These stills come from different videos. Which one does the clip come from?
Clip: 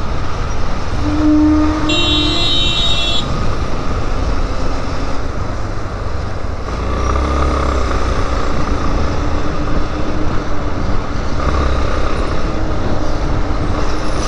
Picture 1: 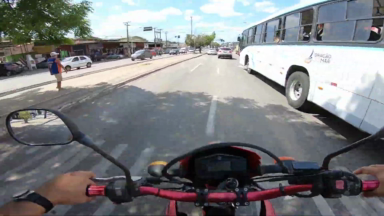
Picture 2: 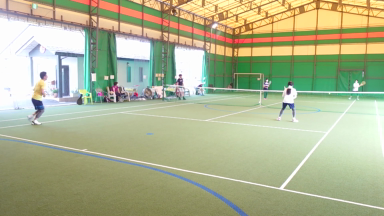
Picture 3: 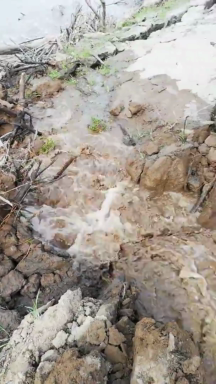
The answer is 1